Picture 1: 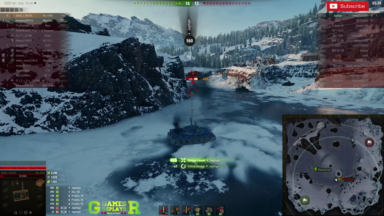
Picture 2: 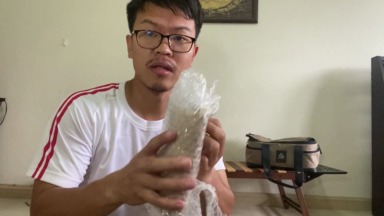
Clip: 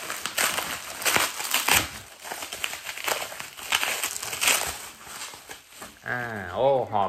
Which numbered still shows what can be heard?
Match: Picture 2